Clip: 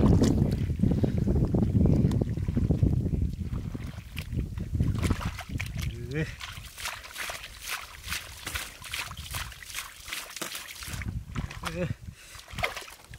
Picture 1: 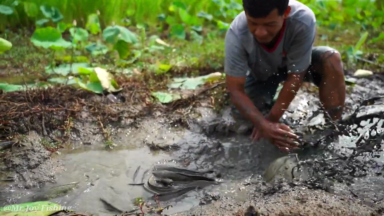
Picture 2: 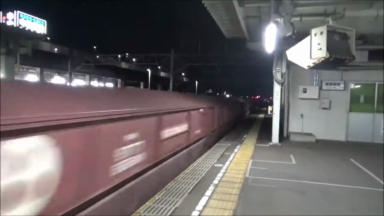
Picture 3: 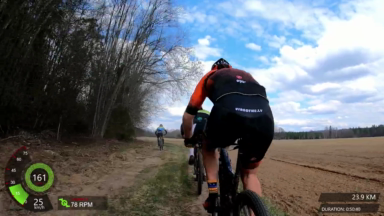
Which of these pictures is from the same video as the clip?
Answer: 1